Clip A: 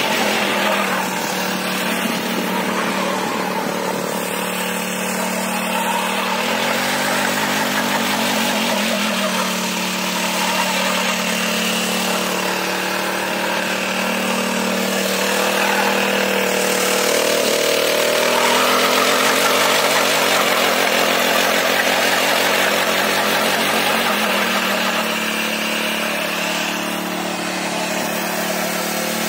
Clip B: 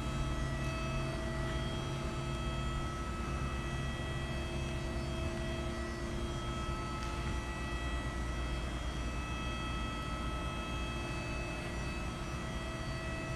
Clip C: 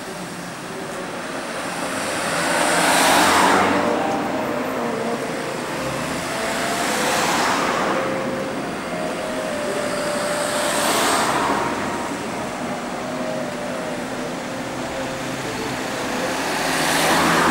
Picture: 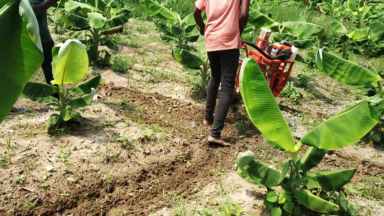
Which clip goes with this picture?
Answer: A